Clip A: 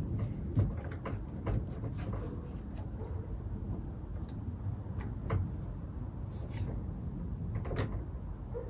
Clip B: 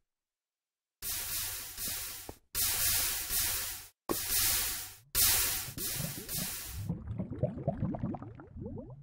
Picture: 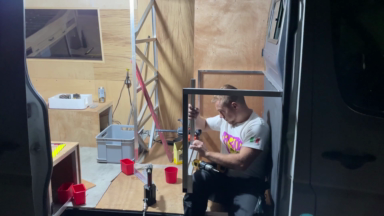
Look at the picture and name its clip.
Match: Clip A